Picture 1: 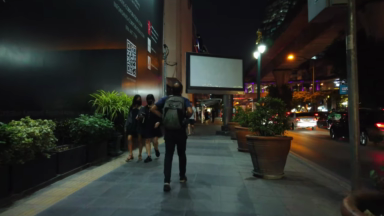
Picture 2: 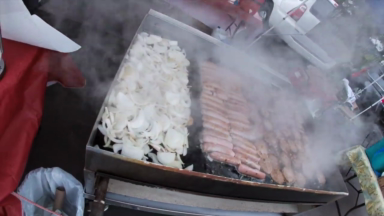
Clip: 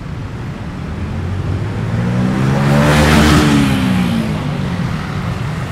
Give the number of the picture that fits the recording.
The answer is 1